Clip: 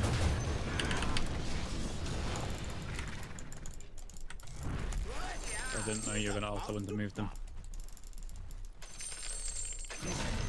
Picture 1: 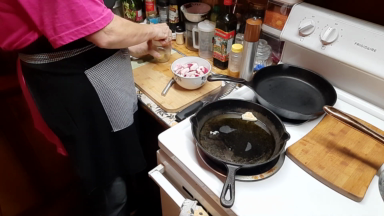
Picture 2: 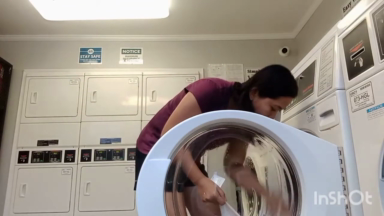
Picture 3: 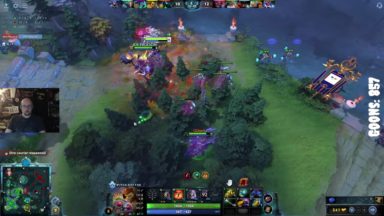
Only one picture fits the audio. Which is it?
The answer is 3